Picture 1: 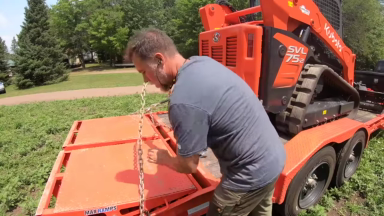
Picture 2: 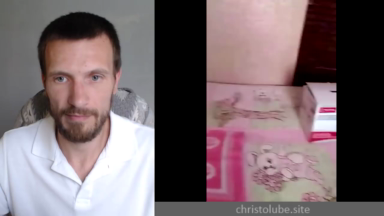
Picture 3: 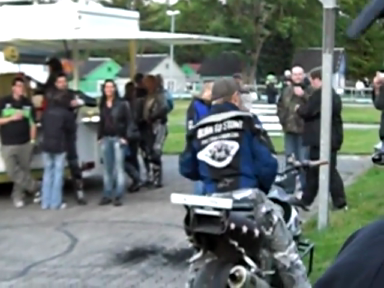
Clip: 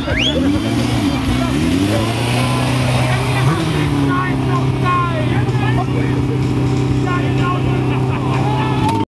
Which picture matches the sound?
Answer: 3